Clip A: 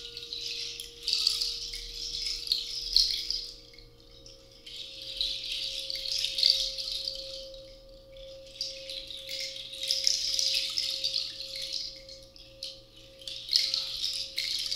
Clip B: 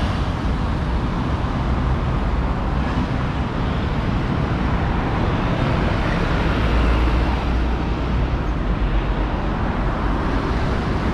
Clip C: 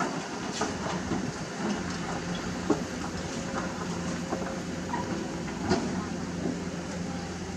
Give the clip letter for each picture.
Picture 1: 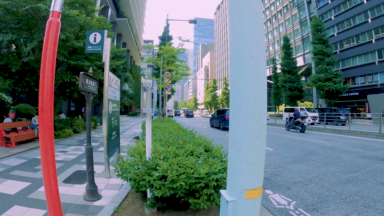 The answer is B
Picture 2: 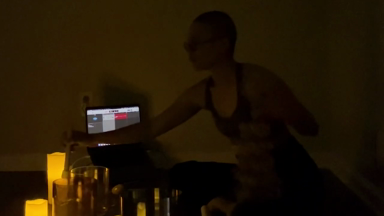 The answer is A